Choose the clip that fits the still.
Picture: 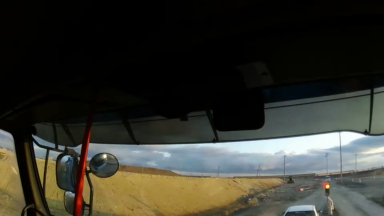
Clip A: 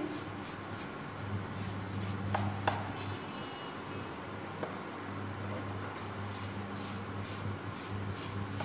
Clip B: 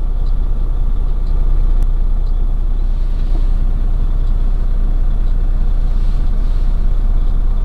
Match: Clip B